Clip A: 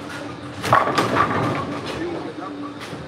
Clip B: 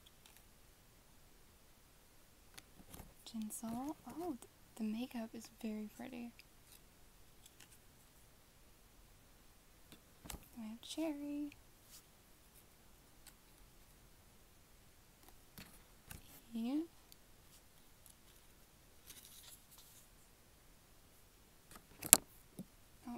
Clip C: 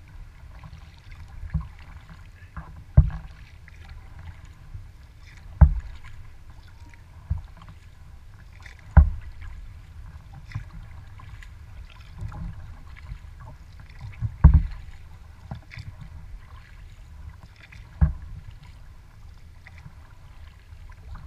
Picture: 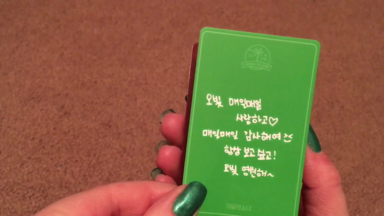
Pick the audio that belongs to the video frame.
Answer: B